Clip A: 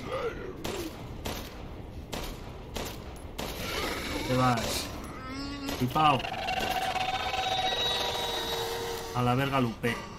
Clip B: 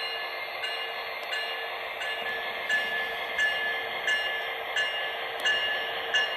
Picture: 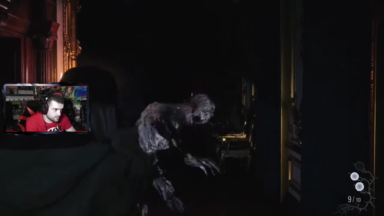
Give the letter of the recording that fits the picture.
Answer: A